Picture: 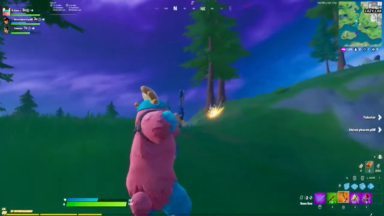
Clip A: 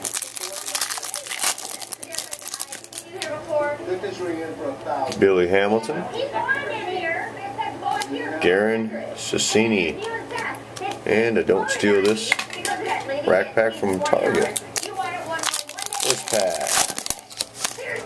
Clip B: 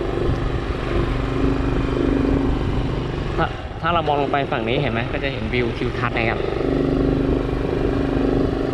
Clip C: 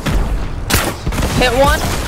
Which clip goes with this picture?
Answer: C